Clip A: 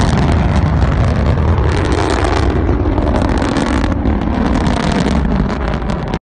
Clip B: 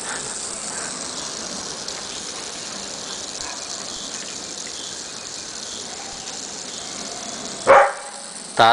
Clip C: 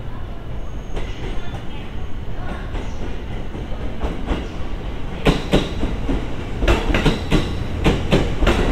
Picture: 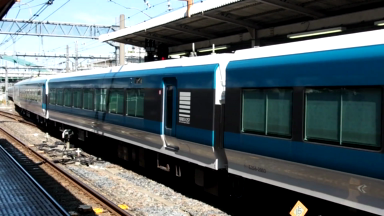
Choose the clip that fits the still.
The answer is C